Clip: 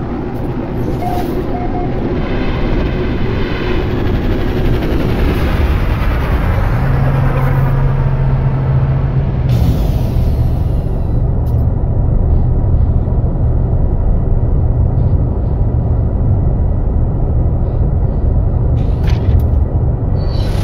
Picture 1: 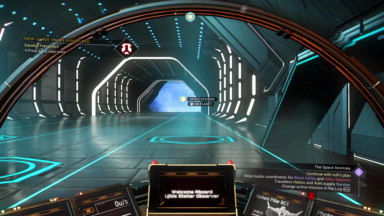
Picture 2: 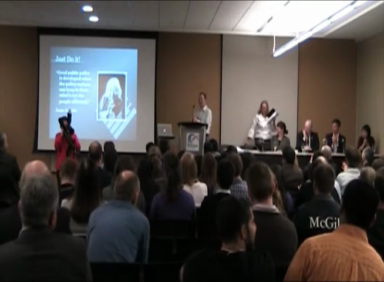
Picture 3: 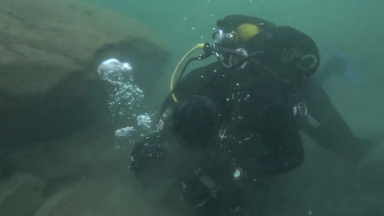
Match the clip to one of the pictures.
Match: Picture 1